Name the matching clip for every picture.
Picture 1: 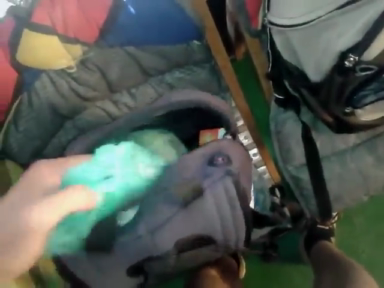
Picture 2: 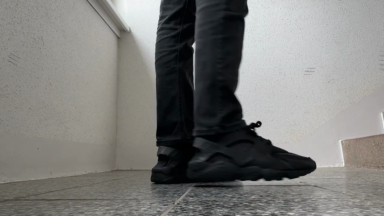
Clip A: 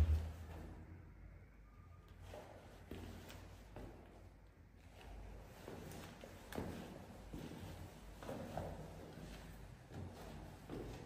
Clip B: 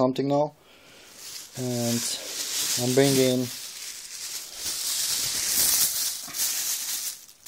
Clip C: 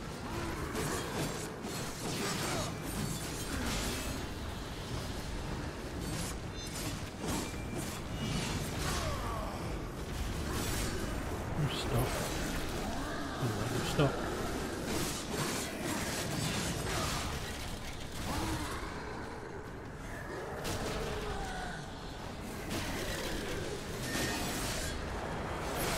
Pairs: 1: B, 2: A